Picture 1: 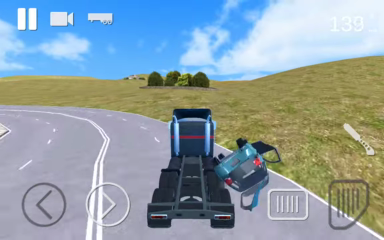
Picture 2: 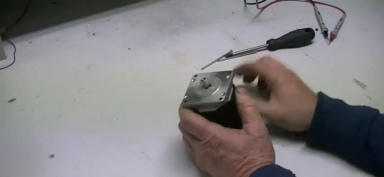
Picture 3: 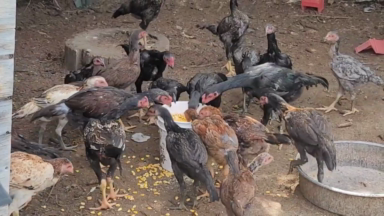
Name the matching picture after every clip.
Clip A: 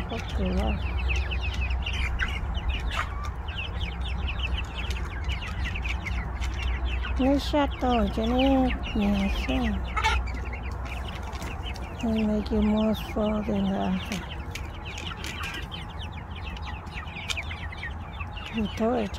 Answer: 3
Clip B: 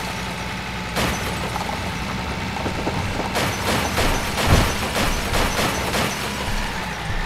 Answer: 1